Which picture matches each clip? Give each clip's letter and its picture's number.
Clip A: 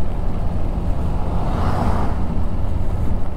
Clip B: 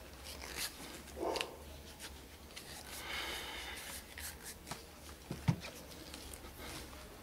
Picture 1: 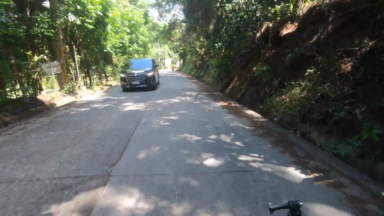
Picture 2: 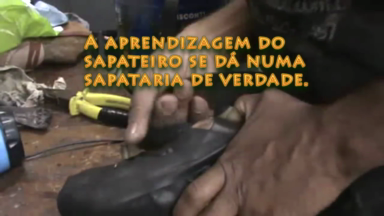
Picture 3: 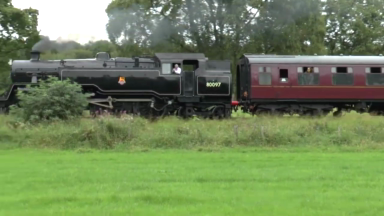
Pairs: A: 1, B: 2